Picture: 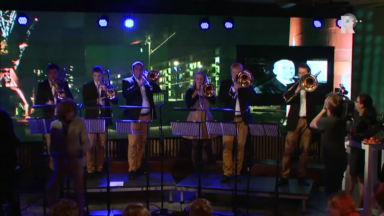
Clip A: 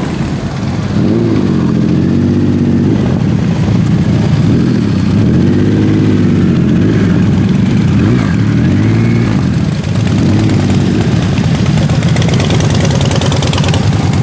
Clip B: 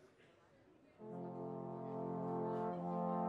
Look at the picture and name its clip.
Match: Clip B